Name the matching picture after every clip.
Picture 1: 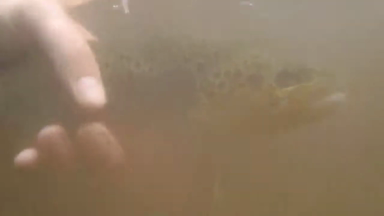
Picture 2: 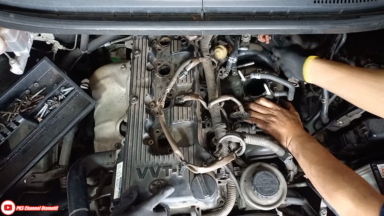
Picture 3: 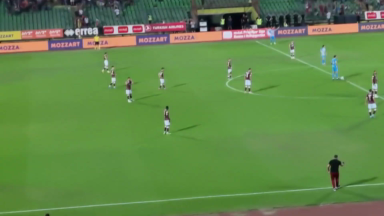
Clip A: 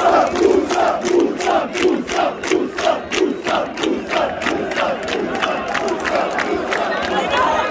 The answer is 3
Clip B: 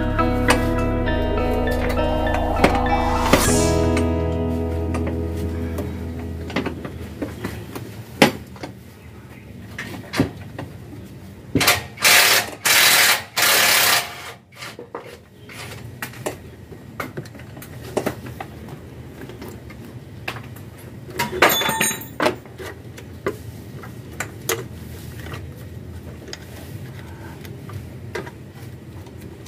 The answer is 2